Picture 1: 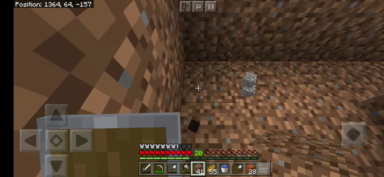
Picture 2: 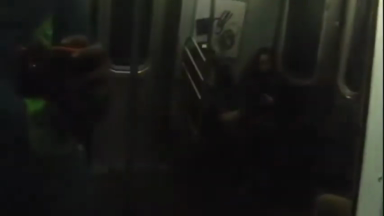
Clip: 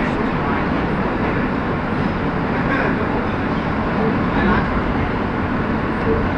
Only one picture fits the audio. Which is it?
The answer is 2